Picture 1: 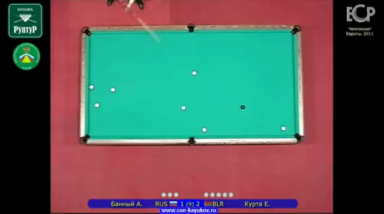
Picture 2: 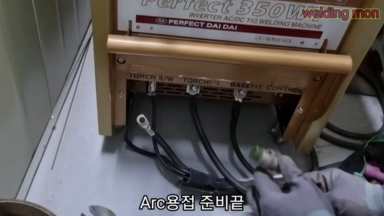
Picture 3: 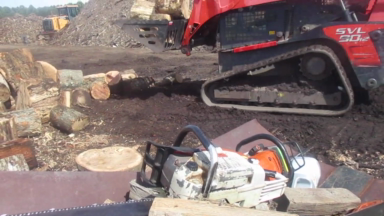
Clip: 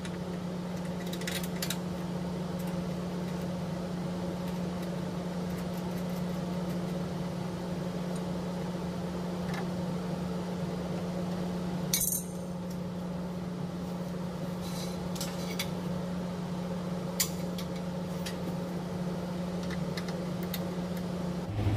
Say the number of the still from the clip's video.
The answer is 2